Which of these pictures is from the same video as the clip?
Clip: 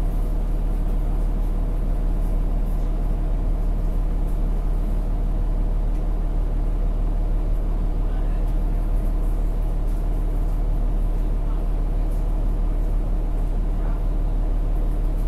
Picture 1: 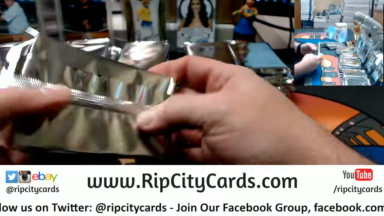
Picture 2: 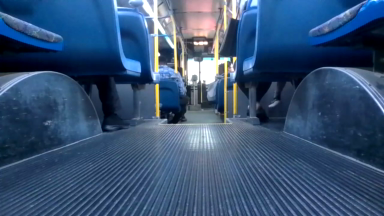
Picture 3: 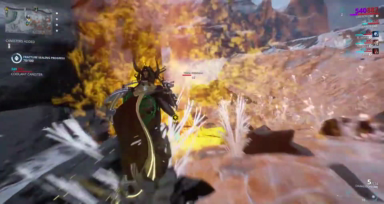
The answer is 2